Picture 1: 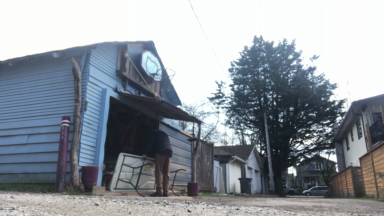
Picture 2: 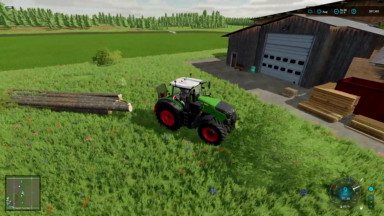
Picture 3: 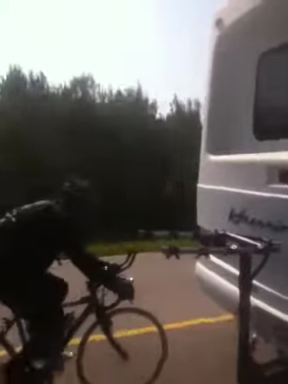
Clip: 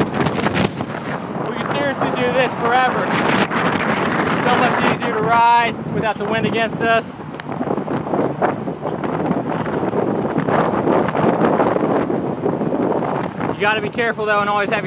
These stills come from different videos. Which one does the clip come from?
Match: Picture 3